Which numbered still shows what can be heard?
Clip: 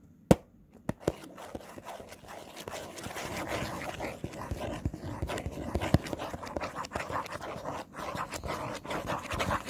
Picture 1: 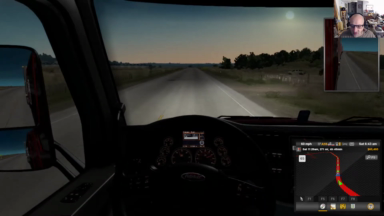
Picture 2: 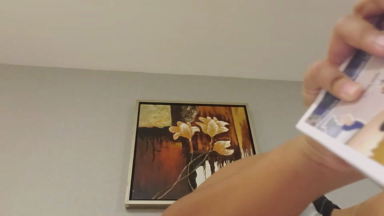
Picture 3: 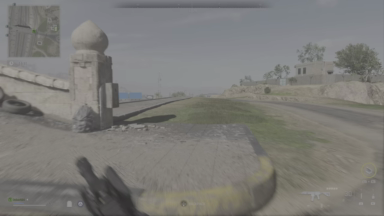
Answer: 2